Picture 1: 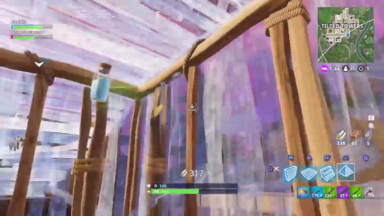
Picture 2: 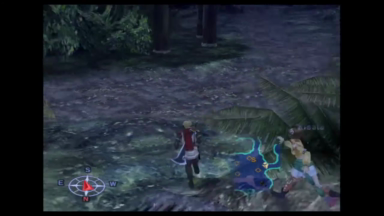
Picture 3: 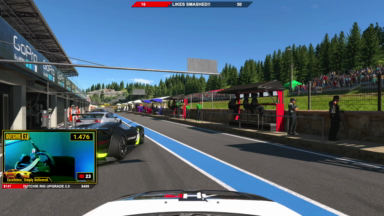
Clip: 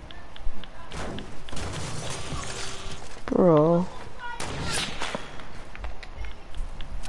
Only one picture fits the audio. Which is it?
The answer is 1